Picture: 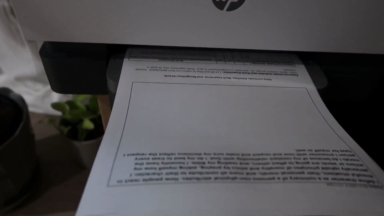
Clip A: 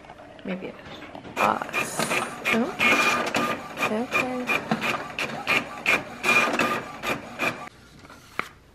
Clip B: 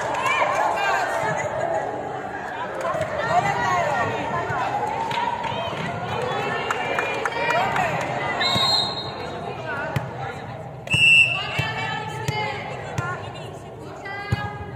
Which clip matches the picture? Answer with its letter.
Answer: A